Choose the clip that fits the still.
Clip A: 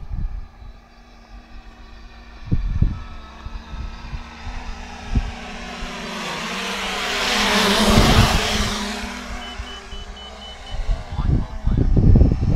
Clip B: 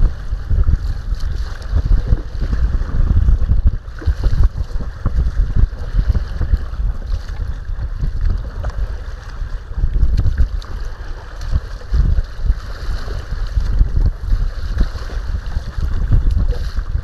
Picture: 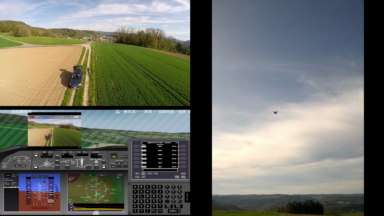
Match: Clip A